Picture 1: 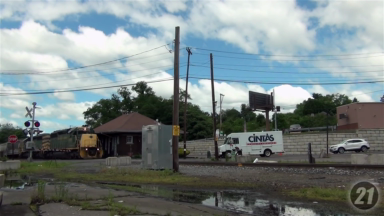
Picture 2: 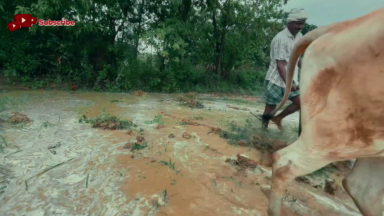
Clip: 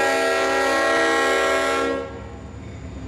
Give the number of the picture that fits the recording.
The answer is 1